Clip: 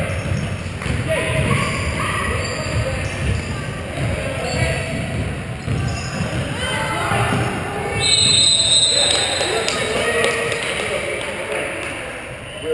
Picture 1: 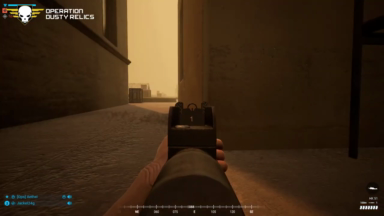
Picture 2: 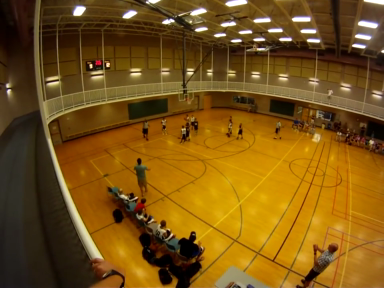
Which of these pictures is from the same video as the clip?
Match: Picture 2